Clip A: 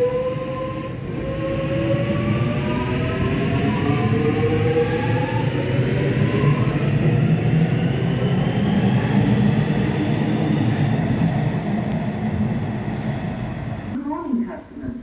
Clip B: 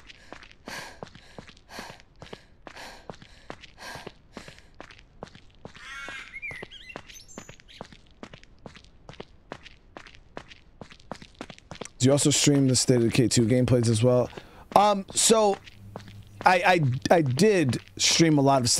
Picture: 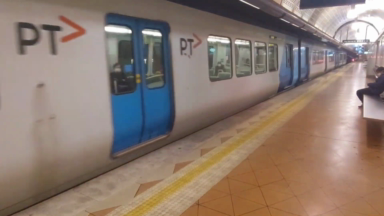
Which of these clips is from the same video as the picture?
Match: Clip A